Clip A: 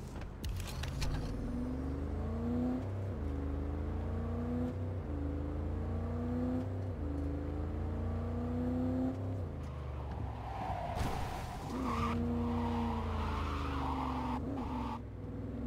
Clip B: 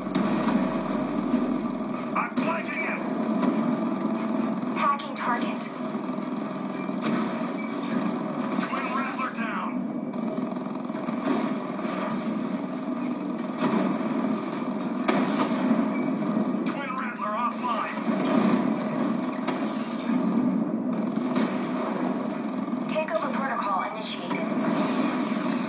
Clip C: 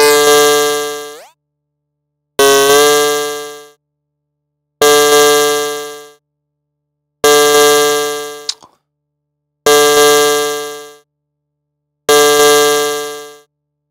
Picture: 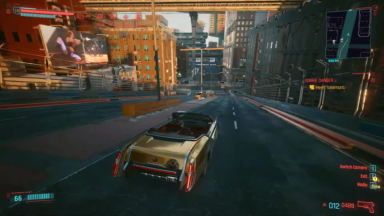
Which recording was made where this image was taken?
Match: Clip A